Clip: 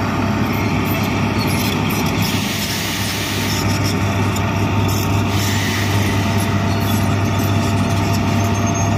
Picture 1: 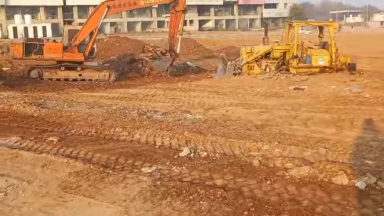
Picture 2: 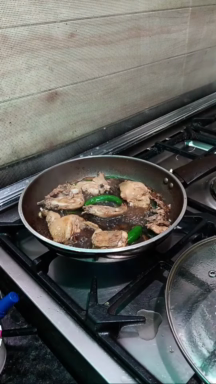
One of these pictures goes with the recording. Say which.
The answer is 1